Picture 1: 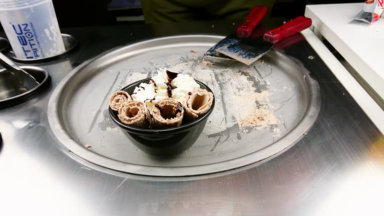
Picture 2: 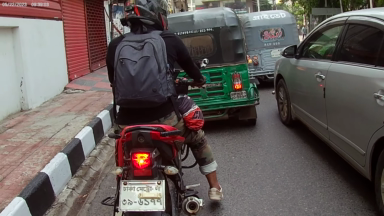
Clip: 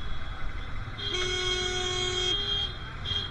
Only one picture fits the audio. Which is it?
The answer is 2